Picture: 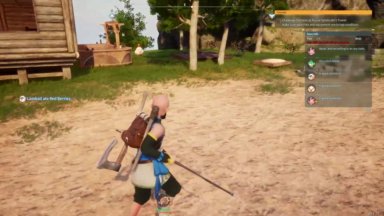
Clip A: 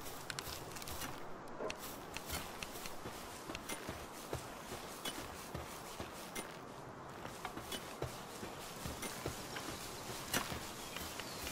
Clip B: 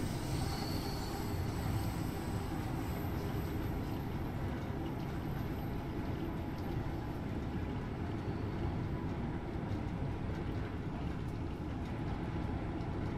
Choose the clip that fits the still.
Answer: A